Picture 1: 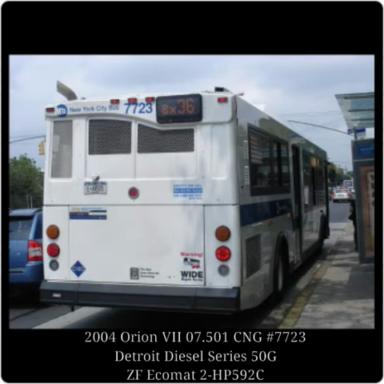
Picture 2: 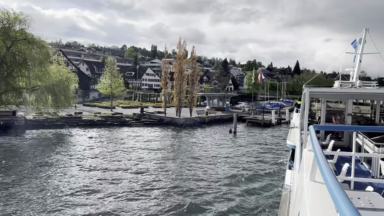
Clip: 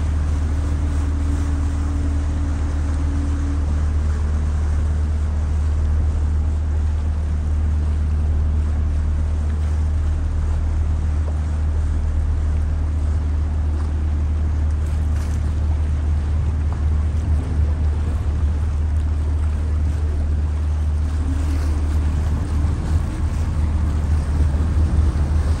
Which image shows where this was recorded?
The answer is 2